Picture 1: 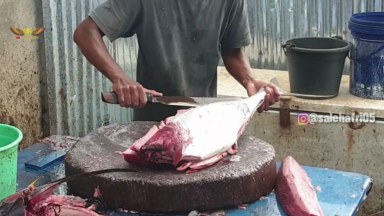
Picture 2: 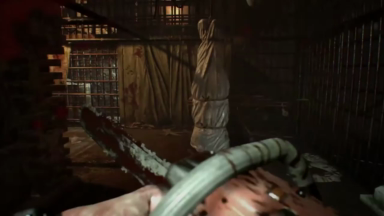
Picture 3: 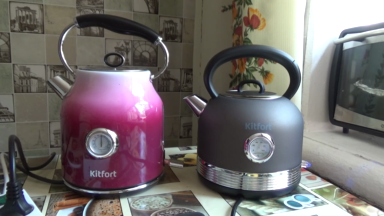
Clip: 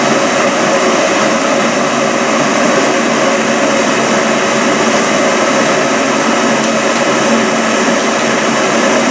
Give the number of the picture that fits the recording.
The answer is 3